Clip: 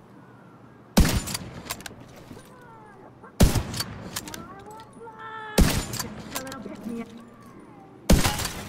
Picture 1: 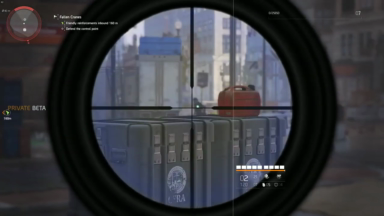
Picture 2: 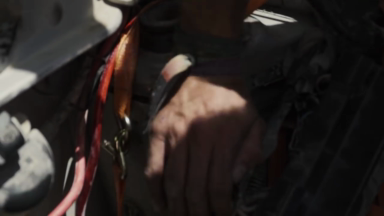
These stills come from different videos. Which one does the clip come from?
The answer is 1